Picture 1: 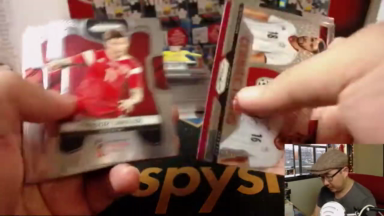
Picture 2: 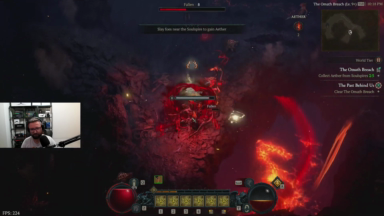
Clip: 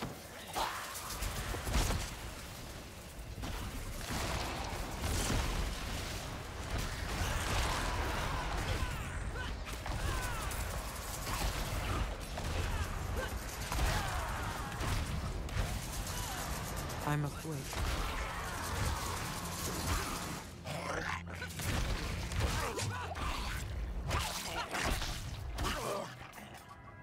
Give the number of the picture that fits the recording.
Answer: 2